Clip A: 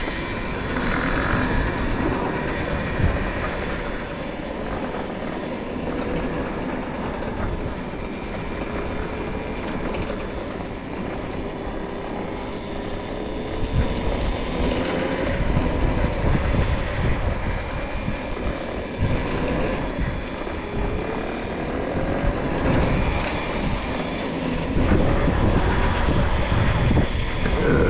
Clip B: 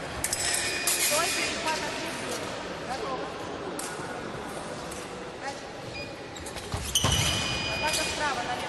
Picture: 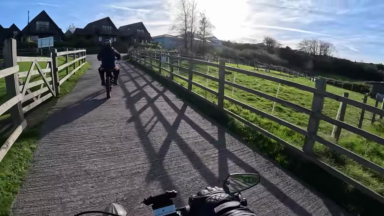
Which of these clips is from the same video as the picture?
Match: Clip A